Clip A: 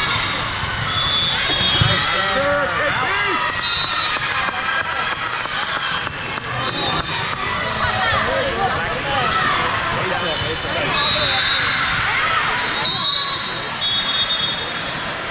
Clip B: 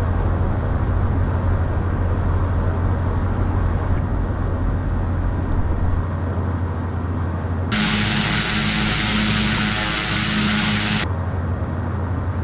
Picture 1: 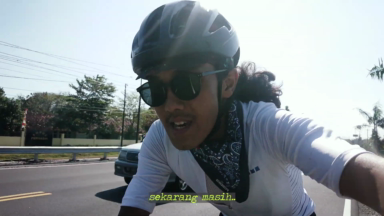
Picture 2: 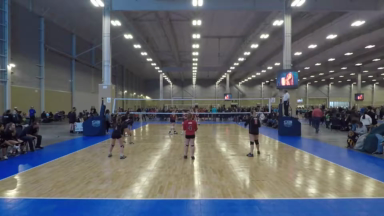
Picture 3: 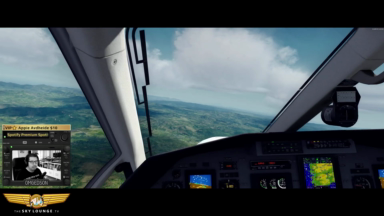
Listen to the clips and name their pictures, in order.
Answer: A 2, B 3